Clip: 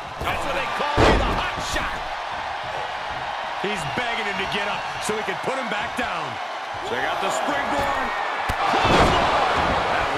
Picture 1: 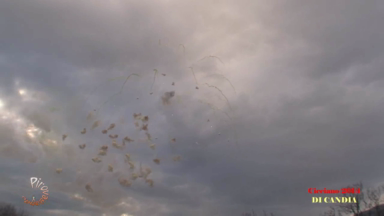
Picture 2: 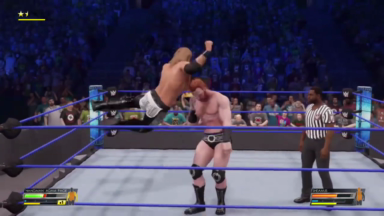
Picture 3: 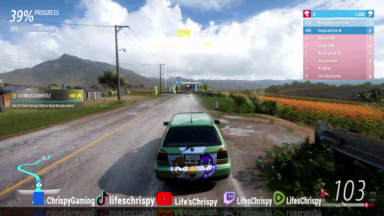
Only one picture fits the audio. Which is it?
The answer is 2